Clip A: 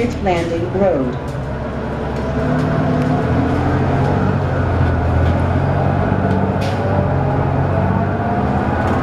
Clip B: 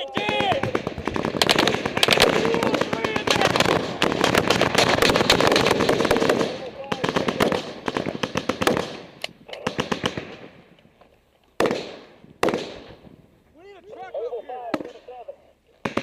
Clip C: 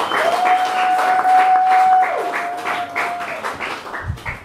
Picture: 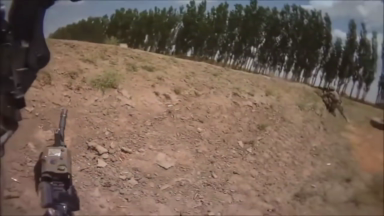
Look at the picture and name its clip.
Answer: B